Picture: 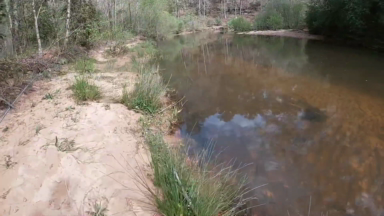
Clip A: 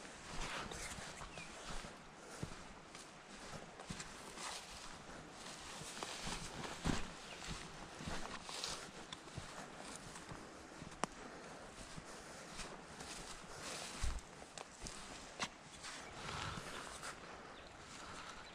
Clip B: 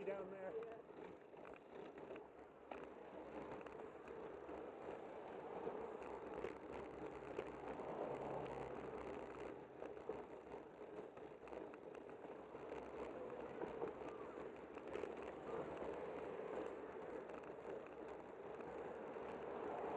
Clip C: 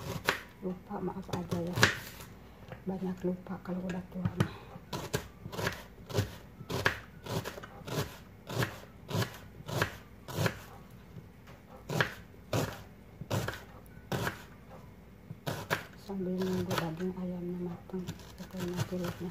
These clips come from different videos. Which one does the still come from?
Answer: A